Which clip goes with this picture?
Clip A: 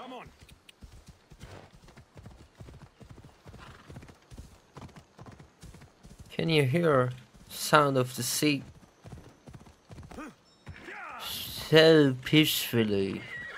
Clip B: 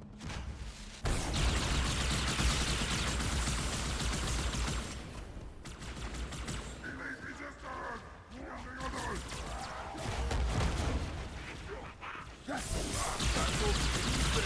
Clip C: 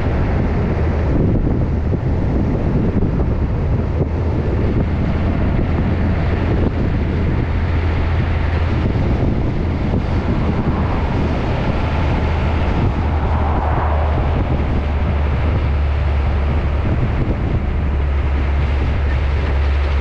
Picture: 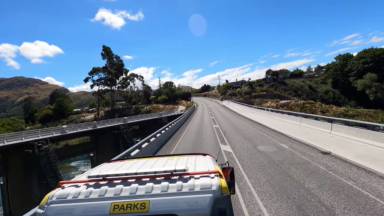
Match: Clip C